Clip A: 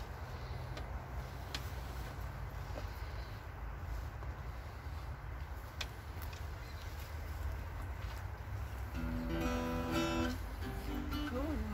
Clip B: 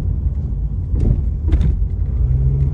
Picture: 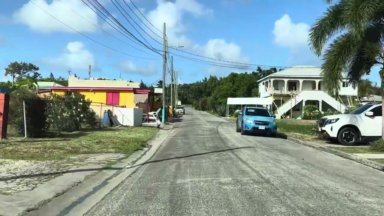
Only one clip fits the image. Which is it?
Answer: B